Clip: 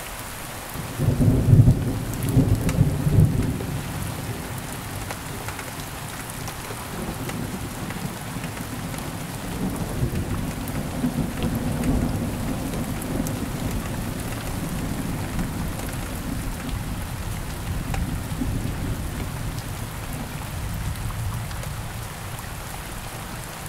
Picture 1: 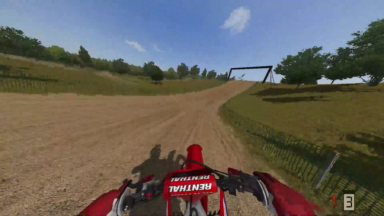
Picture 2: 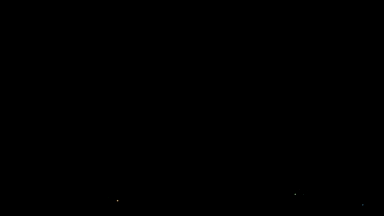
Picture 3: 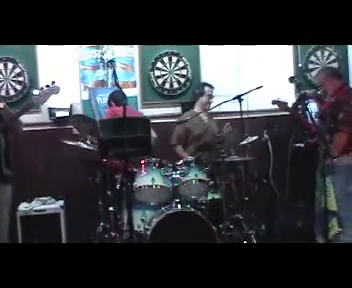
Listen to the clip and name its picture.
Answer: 2